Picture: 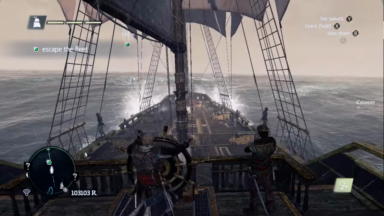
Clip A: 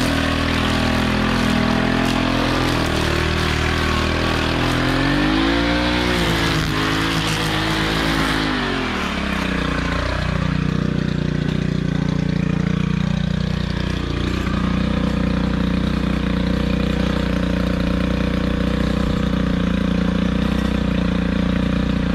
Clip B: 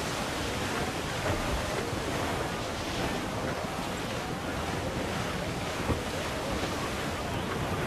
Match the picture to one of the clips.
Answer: B